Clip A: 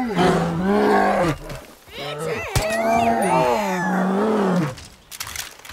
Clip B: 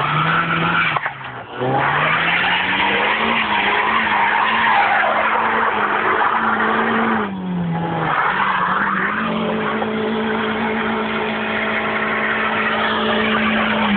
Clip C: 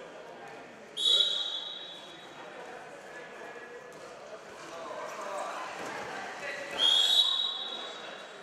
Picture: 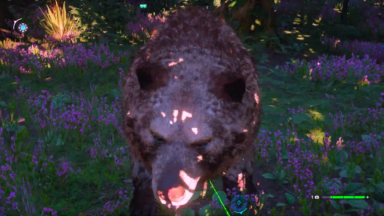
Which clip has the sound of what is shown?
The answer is A